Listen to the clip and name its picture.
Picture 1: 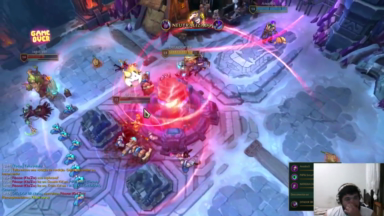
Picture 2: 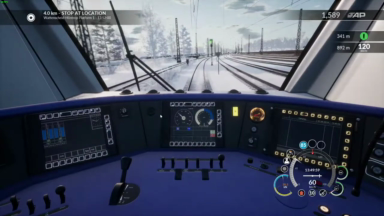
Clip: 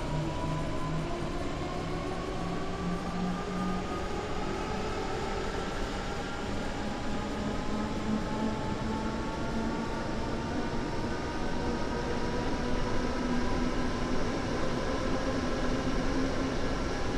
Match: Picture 2